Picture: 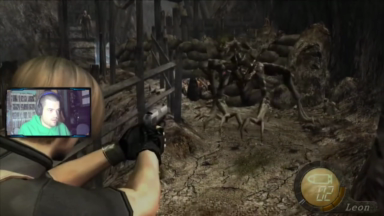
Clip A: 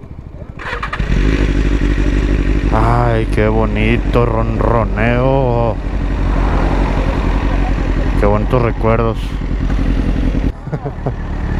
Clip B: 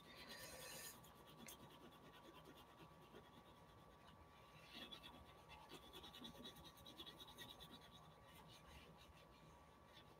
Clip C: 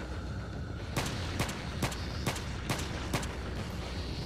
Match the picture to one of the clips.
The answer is C